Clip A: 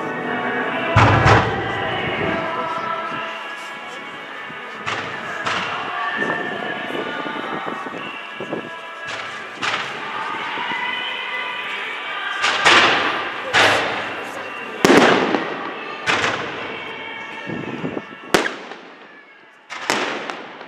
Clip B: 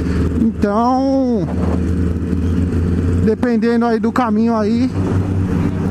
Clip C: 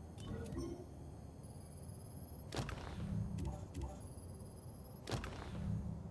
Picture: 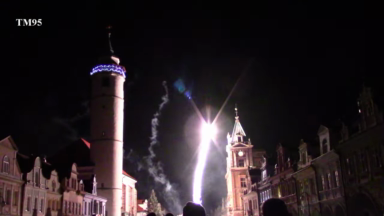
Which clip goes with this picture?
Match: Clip A